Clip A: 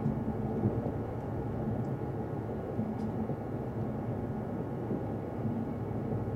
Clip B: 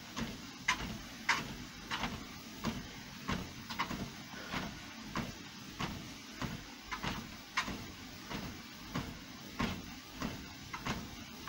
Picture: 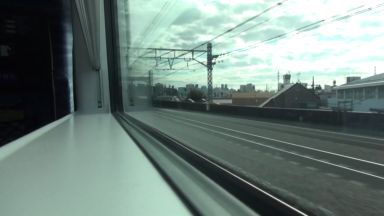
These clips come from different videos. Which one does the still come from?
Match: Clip A